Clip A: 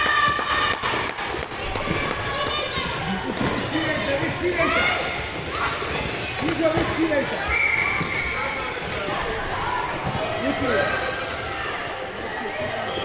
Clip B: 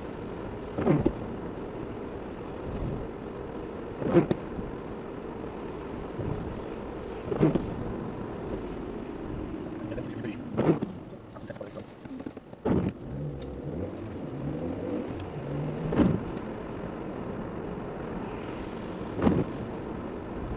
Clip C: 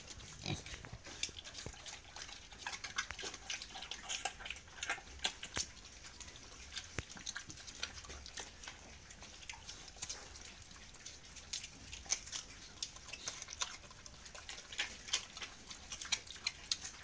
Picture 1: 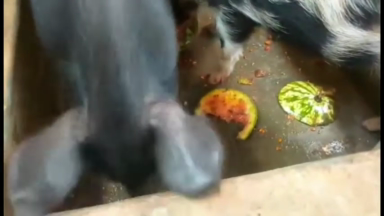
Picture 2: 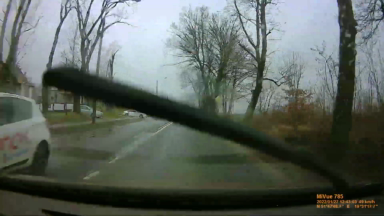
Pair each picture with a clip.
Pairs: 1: C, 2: B